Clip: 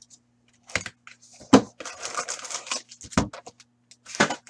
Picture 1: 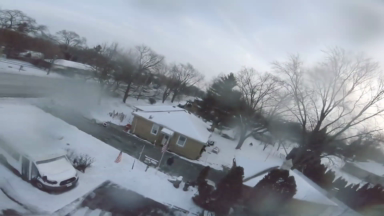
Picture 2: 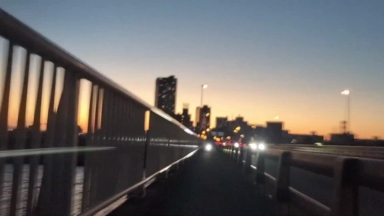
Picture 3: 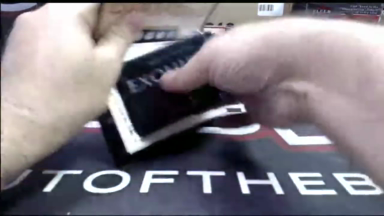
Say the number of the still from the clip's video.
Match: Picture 3